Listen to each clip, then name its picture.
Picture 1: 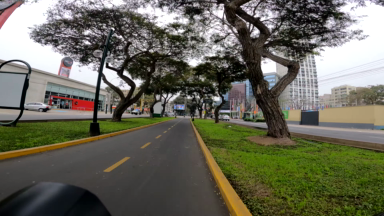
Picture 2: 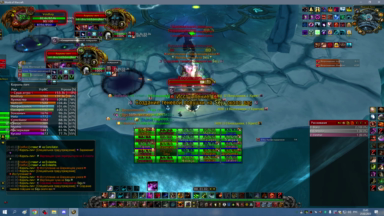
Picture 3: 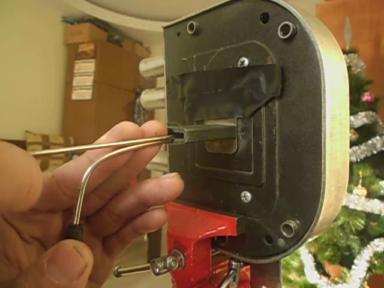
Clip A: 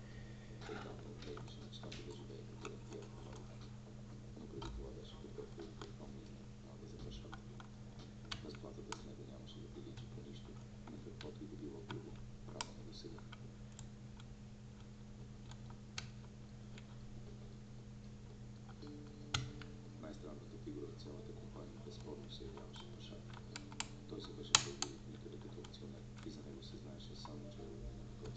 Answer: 3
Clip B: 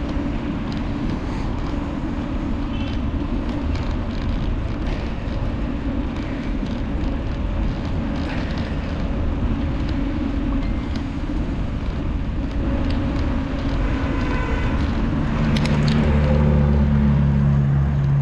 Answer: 1